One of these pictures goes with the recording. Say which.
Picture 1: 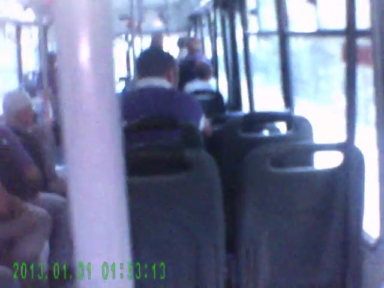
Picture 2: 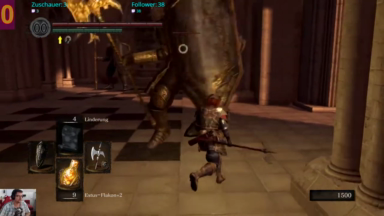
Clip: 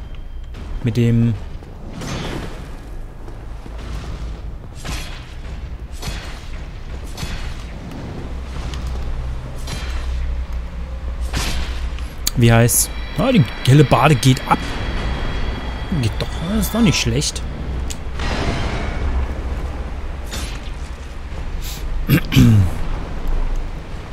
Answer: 2